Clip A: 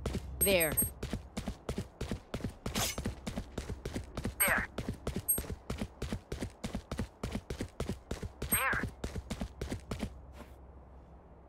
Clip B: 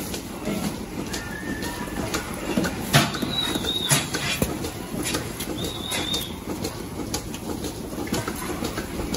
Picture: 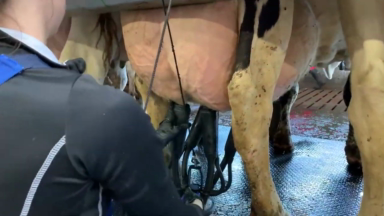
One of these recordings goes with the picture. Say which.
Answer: B